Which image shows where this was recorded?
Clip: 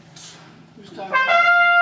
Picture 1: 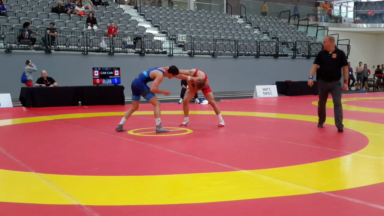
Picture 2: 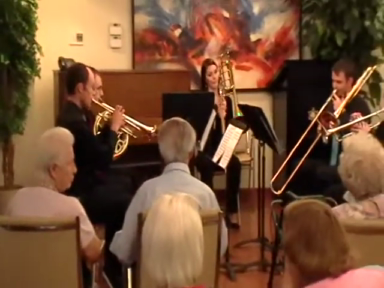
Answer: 2